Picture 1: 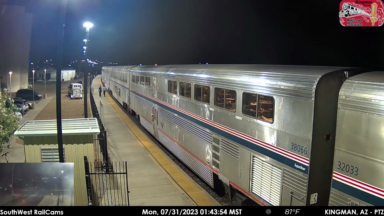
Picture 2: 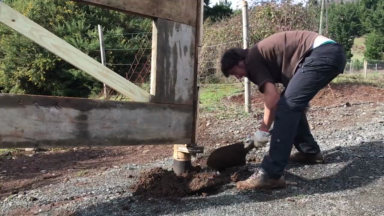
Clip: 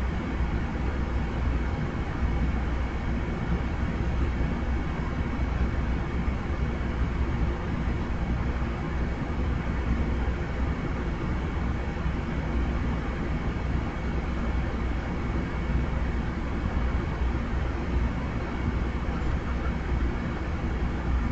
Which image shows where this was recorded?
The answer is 1